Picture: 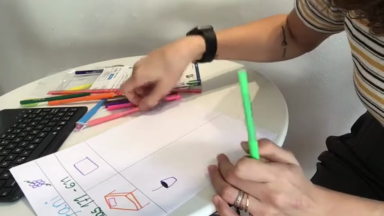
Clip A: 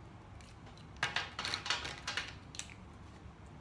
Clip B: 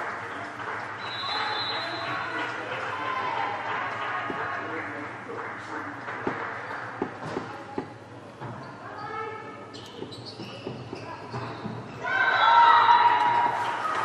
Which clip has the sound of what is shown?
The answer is A